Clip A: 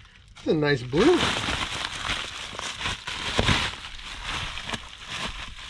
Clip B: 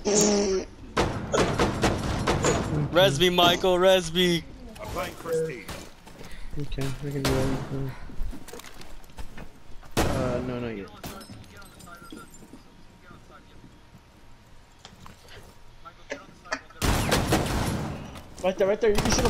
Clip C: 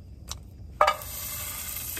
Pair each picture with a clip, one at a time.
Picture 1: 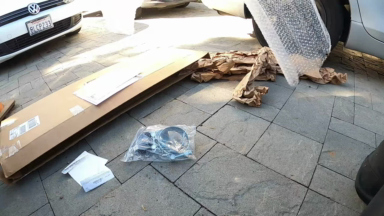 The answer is A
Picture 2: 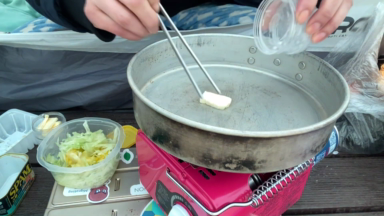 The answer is C